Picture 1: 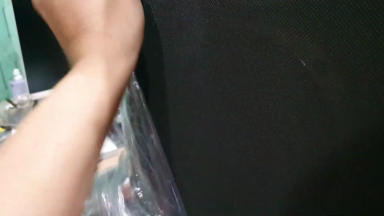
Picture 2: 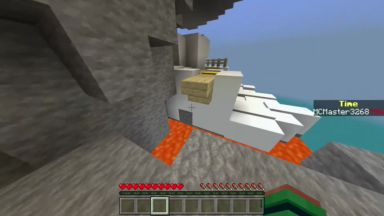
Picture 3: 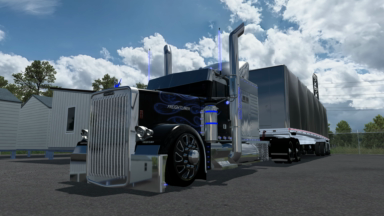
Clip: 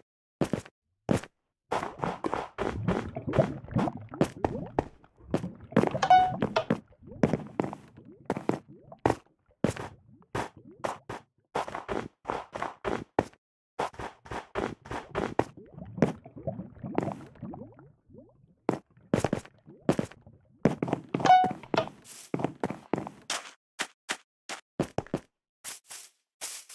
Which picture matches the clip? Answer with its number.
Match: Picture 2